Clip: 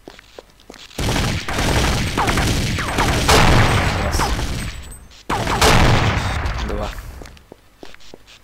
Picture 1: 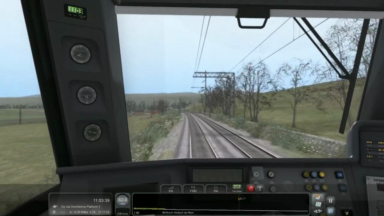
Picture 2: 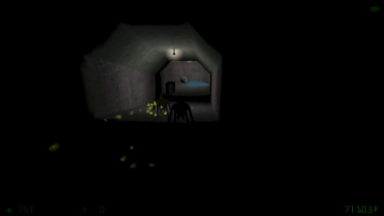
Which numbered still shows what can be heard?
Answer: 2